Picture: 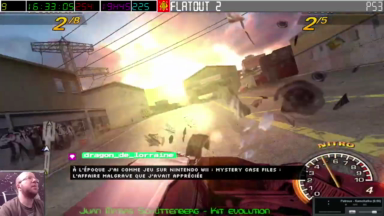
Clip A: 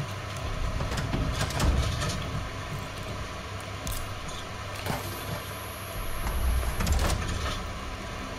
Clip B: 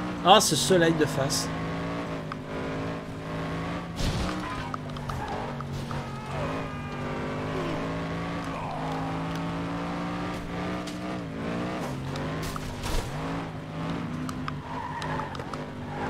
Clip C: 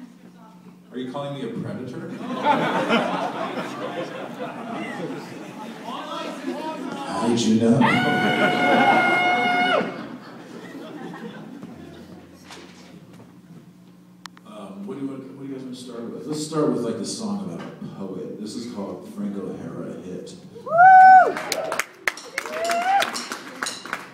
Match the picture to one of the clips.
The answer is B